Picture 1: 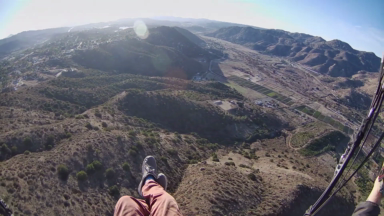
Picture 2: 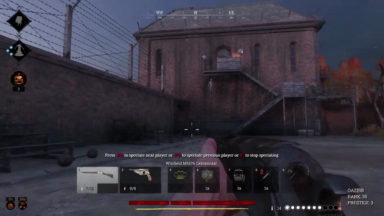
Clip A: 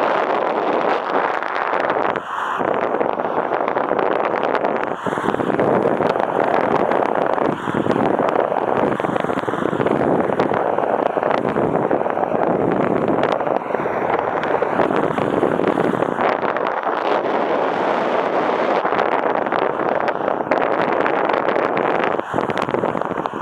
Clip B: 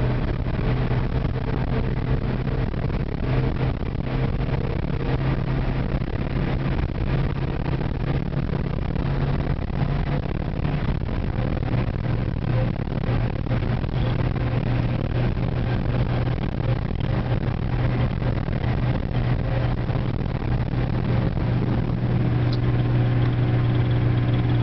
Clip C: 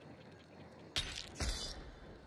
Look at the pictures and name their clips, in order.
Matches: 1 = A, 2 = C